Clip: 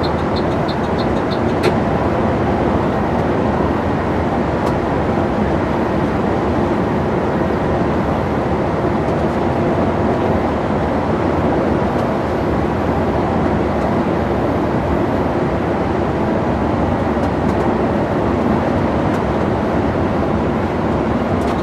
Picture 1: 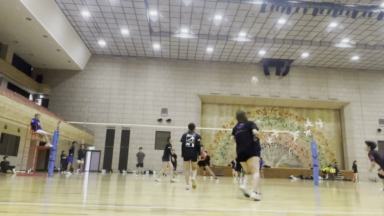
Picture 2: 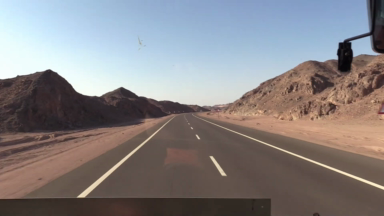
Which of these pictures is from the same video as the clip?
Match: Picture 2